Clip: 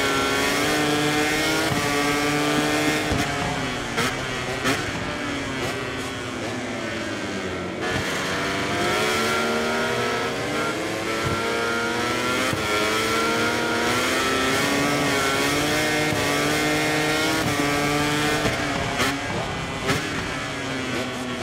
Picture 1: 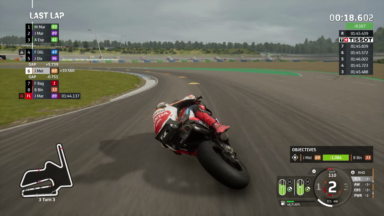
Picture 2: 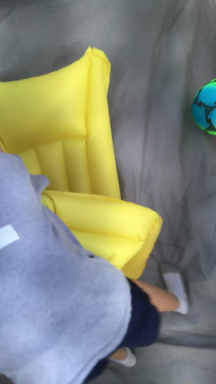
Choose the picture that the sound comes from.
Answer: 1